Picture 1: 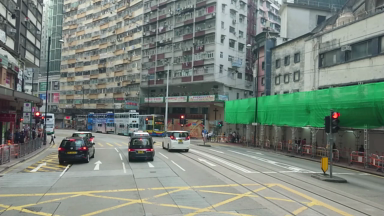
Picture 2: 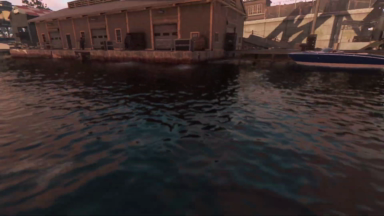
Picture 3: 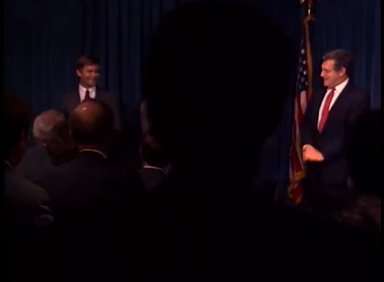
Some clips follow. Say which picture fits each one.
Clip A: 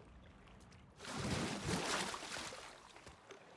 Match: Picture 2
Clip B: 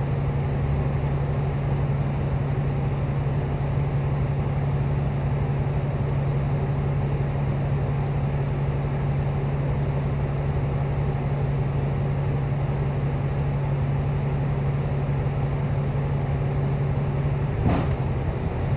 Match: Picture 1